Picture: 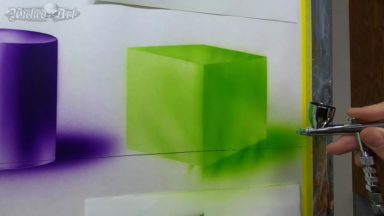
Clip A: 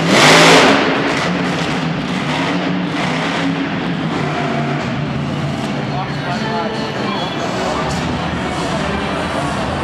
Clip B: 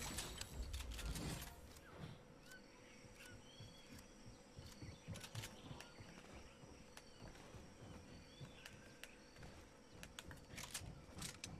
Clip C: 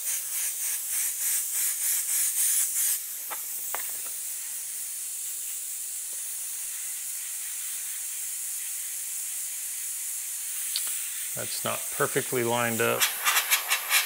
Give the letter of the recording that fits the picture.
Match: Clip C